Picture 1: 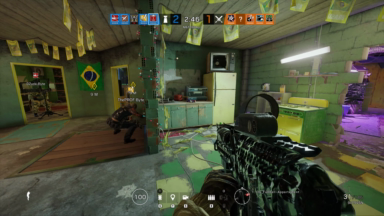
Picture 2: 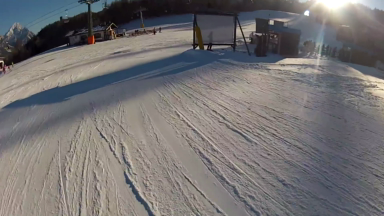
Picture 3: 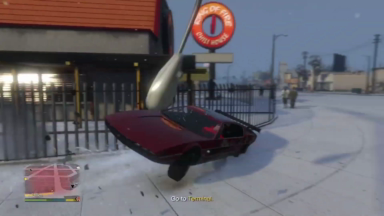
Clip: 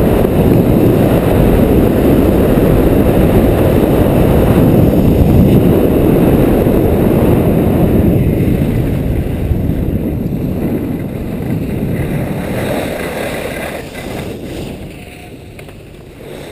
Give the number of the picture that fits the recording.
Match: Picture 2